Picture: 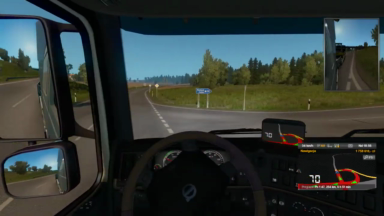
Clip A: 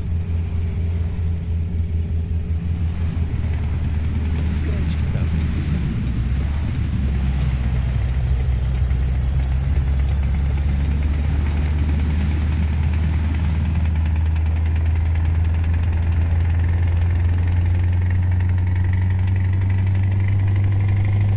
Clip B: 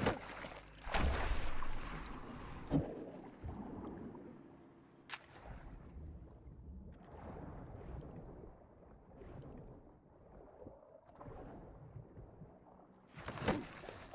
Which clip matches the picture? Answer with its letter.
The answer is A